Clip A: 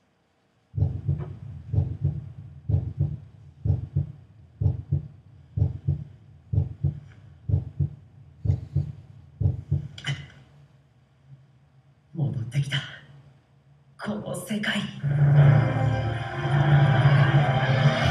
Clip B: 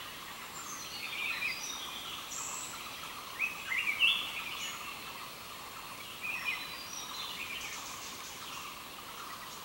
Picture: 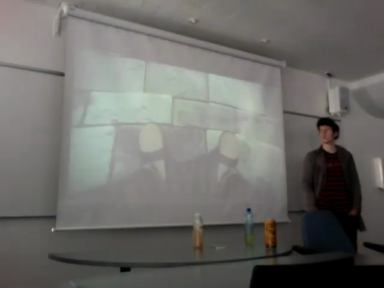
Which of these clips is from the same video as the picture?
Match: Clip A